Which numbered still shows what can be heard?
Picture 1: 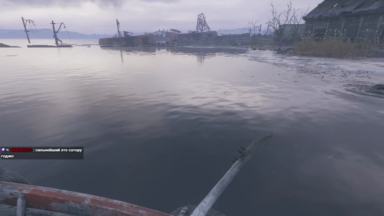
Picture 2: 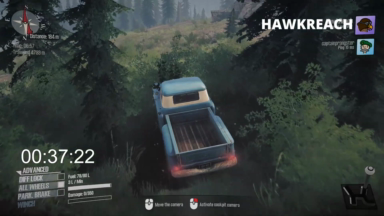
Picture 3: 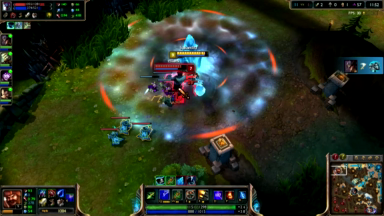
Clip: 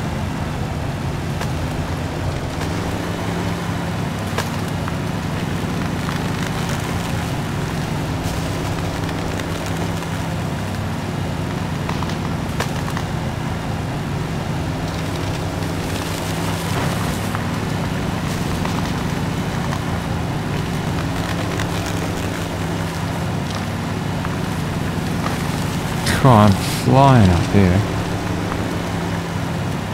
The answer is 2